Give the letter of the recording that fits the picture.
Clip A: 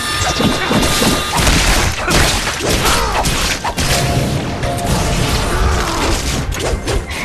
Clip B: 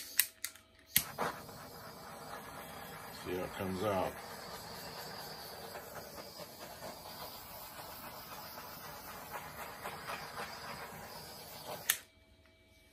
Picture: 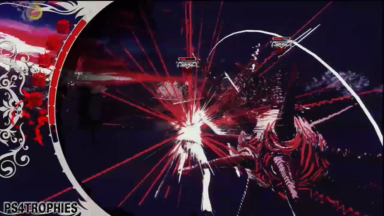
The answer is A